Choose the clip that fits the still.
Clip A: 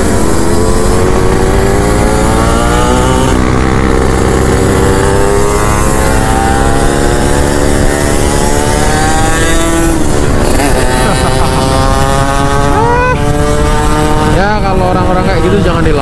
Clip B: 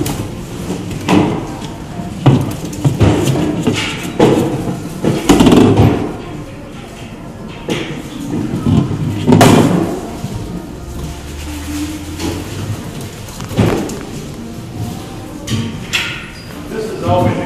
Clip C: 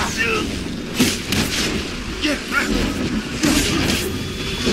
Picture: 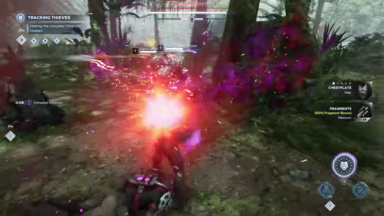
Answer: C